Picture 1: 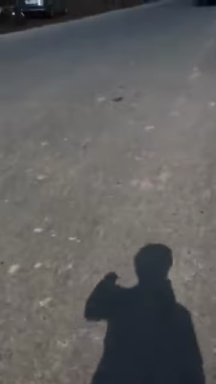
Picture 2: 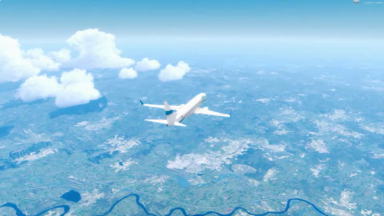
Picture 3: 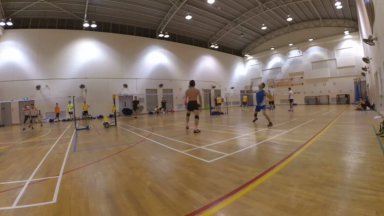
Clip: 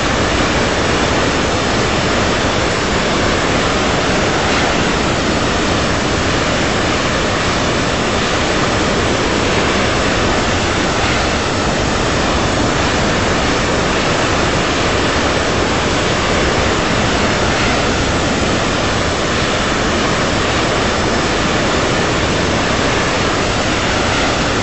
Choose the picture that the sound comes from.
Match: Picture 2